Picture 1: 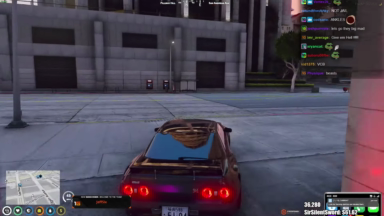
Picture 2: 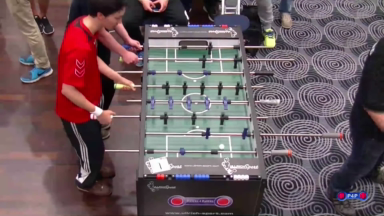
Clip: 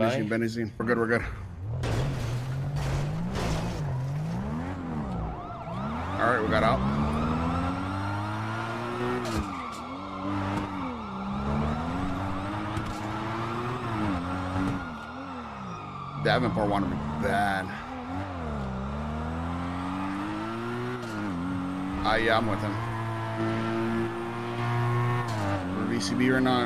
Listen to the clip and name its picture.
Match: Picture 1